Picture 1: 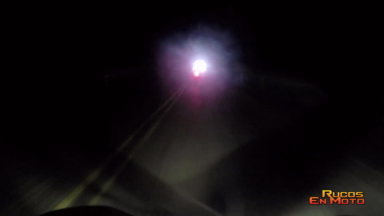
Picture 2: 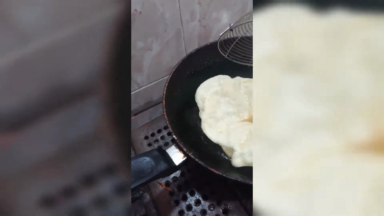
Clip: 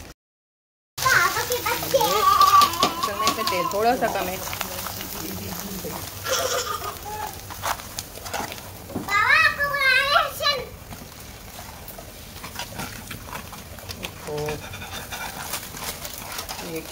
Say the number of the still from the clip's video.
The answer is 2